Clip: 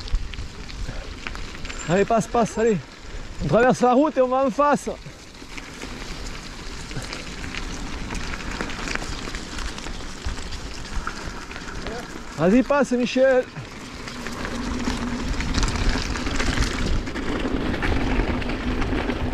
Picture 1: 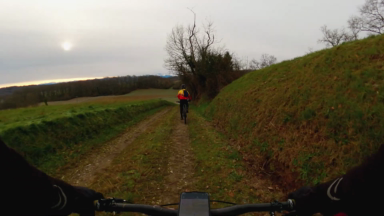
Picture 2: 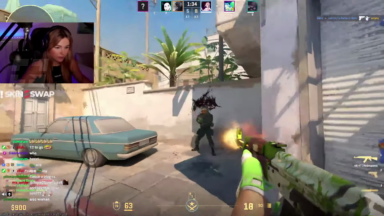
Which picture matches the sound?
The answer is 1